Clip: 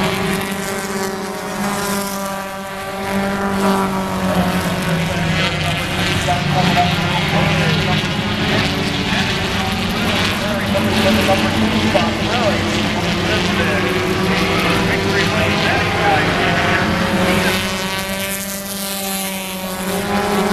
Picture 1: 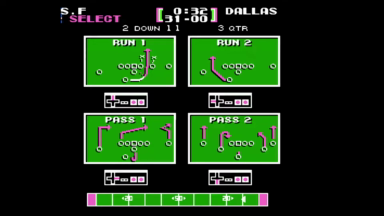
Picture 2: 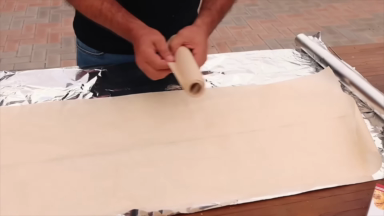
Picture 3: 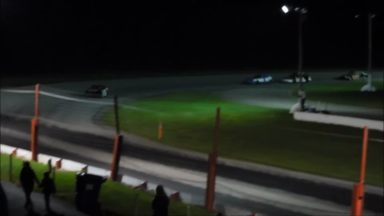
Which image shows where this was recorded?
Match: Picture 3